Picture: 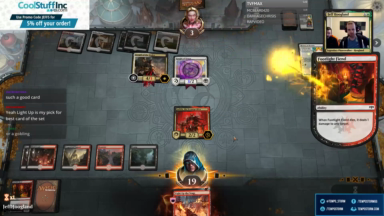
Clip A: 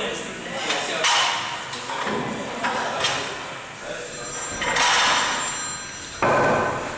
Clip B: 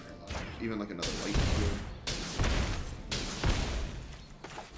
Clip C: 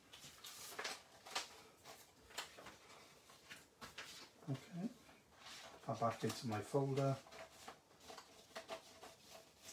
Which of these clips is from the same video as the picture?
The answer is B